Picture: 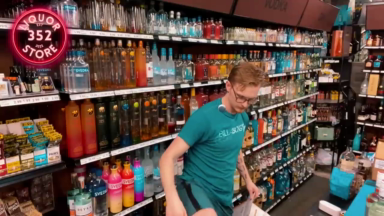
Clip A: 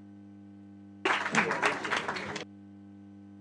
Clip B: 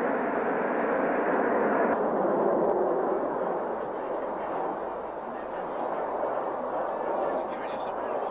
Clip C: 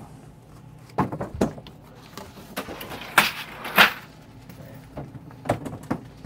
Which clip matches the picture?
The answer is C